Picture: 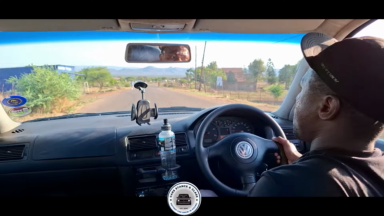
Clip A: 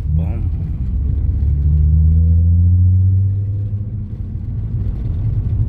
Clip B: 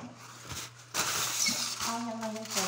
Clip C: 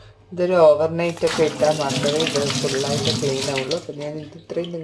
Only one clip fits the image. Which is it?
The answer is A